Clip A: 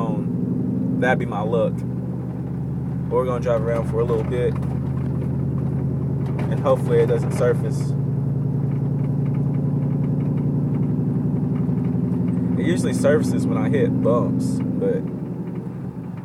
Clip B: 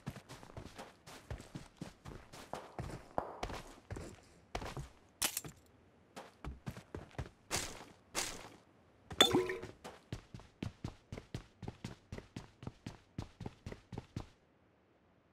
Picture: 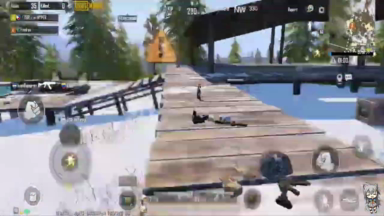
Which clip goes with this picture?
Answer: B